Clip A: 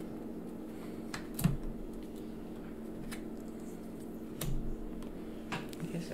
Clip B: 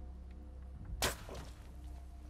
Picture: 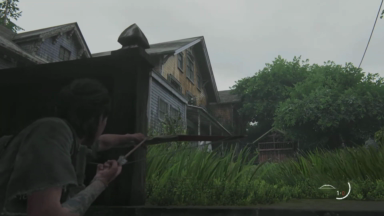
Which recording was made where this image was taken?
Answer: B